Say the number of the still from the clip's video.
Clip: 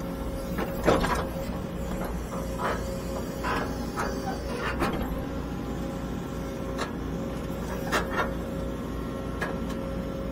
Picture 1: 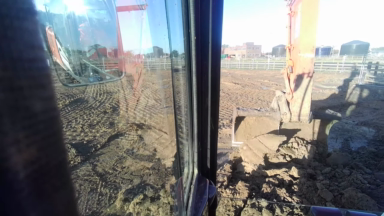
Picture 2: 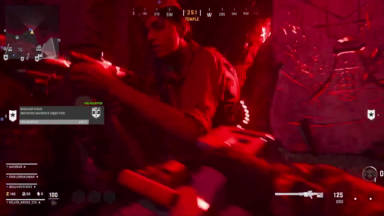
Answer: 1